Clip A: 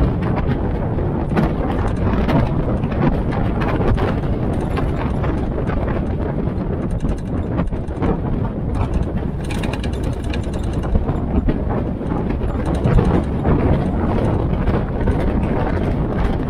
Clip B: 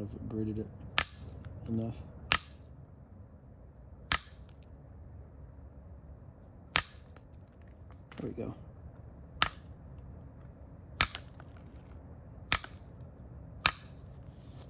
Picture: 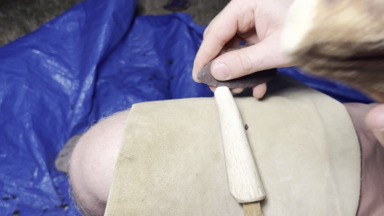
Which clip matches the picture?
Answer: B